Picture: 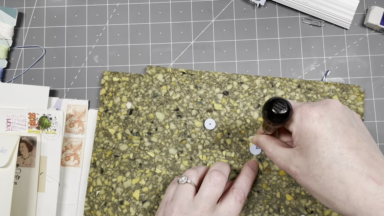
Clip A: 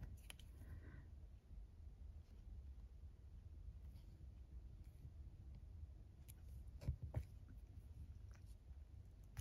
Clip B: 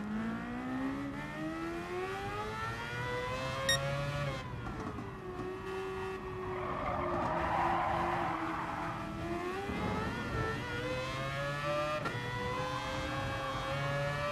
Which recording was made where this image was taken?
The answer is A